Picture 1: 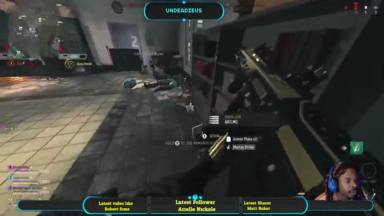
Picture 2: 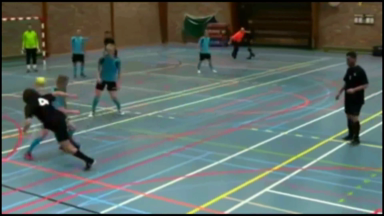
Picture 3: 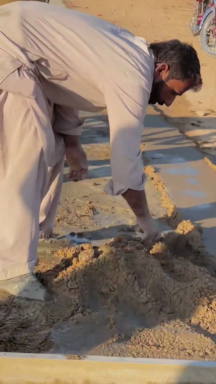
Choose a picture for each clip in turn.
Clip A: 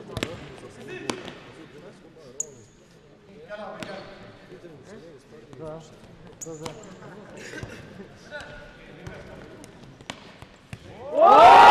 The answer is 2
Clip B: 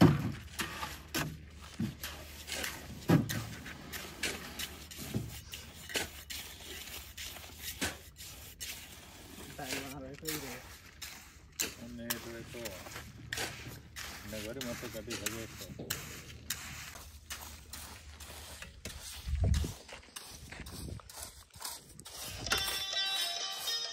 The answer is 3